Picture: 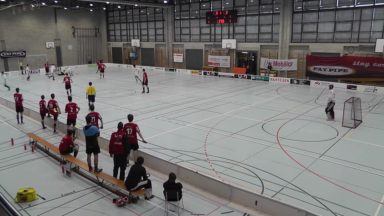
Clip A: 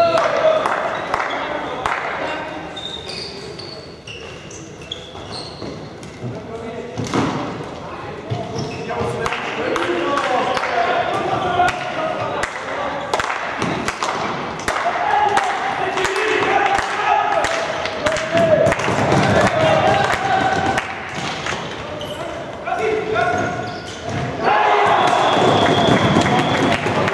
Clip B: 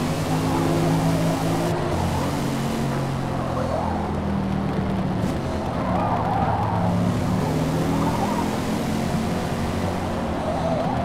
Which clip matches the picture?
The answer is A